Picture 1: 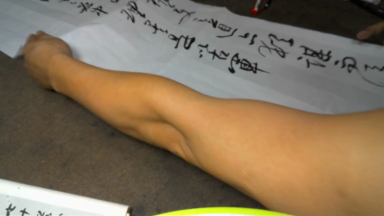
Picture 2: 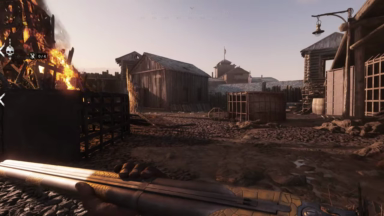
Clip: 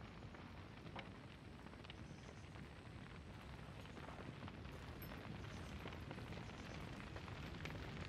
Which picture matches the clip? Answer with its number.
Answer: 2